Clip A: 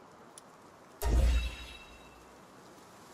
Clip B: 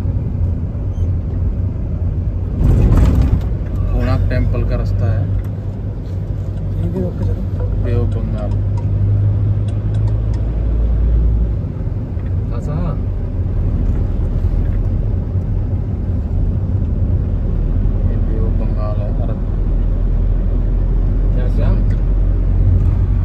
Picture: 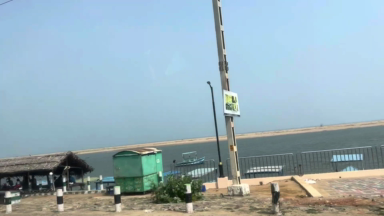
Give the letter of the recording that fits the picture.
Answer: B